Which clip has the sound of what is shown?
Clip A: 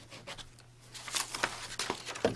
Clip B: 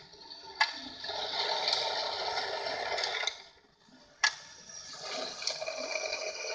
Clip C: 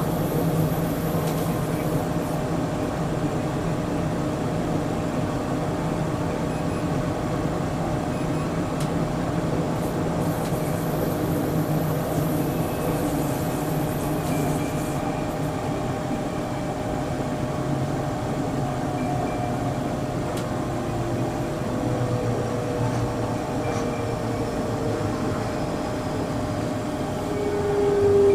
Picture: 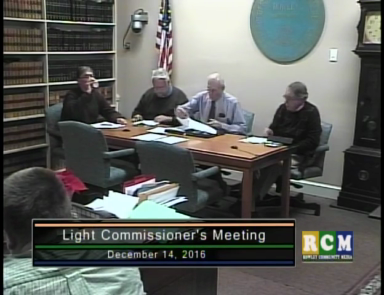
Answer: A